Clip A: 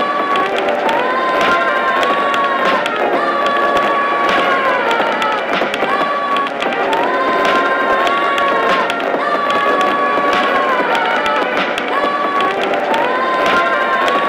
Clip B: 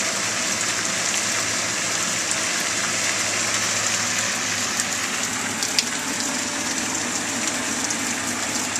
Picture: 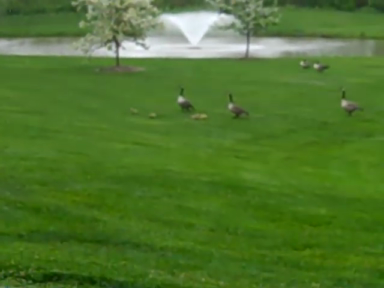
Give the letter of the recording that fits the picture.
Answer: B